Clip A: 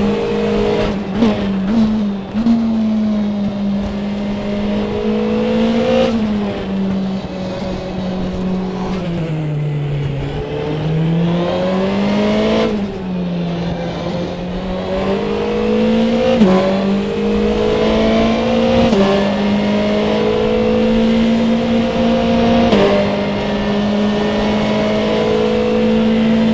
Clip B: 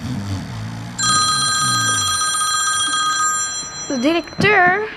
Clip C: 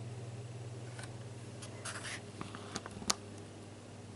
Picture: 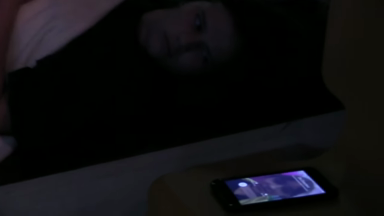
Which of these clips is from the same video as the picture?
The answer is B